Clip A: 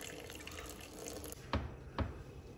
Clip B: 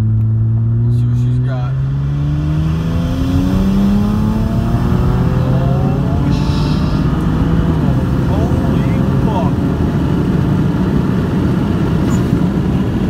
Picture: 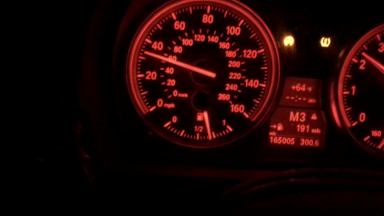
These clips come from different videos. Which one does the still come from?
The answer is B